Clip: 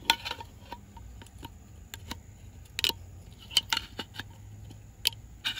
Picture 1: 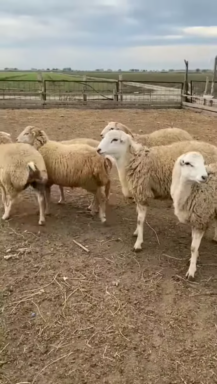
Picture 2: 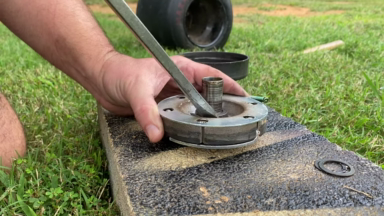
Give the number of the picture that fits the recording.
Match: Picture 2